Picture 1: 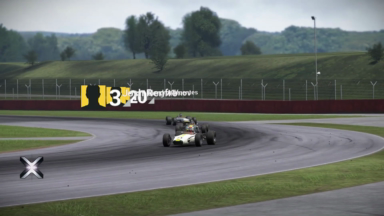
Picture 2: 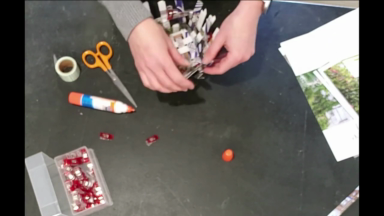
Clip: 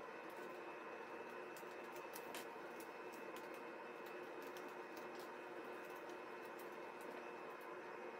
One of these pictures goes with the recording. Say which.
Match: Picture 2